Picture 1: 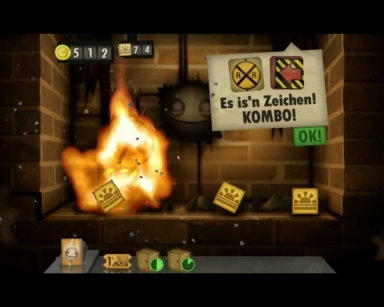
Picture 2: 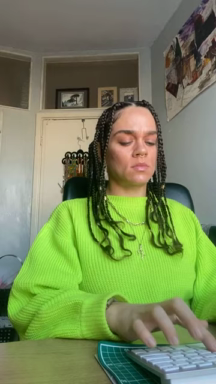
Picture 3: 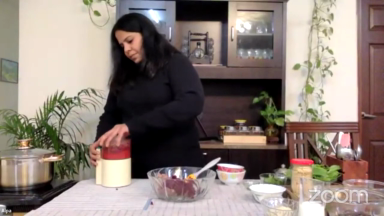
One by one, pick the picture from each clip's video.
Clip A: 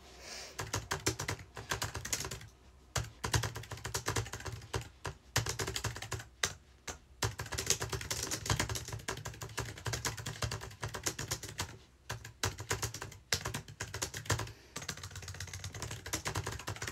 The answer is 2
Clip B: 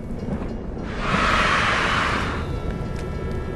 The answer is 1